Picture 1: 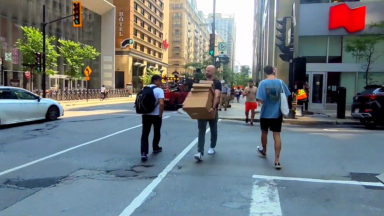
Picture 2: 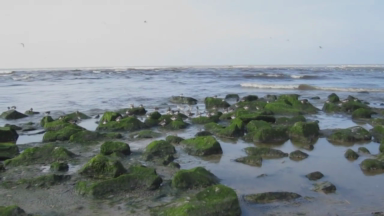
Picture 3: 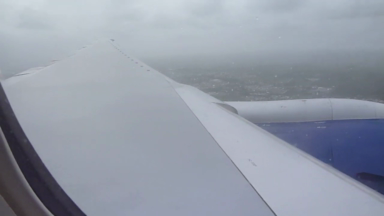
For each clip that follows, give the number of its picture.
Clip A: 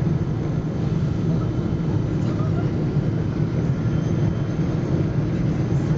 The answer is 3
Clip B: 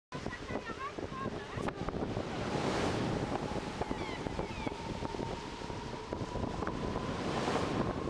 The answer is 2